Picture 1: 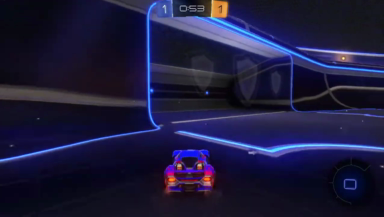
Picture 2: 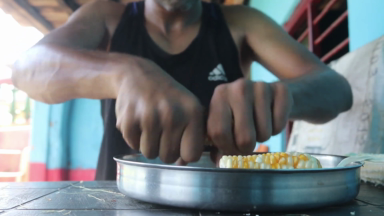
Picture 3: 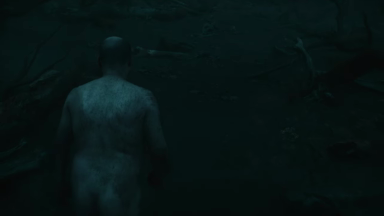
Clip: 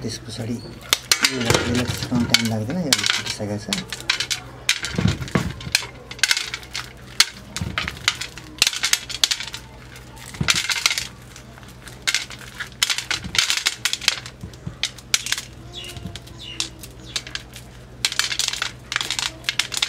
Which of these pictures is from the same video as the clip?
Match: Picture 2